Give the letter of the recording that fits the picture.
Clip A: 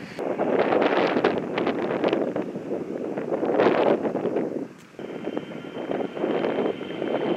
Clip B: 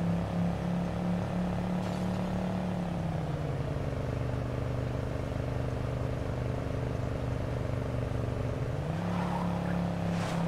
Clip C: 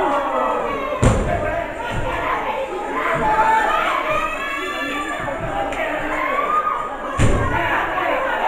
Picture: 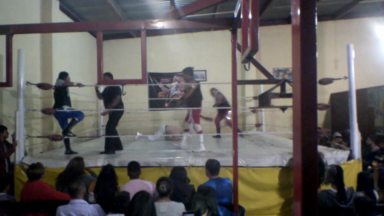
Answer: C